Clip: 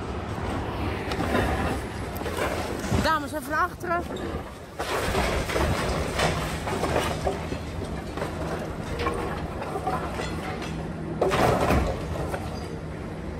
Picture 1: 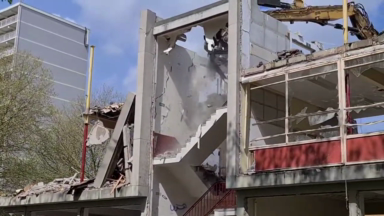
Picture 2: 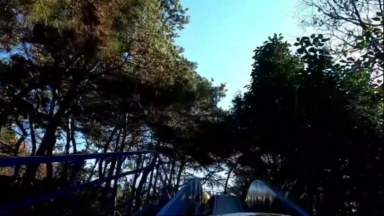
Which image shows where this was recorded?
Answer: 1